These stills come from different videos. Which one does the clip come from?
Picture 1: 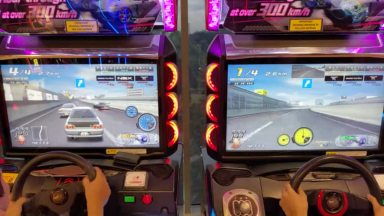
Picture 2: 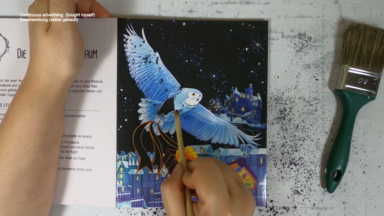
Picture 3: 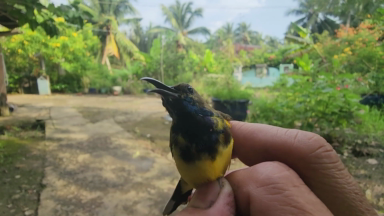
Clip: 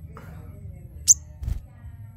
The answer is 3